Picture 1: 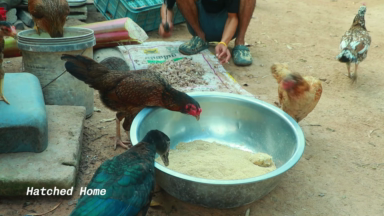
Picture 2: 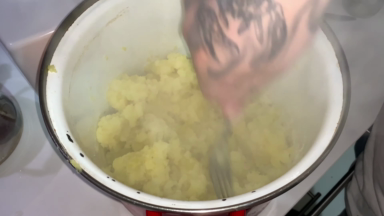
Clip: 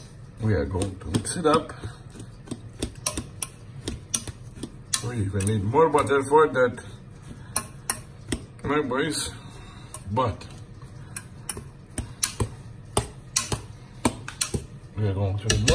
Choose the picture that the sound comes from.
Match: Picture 2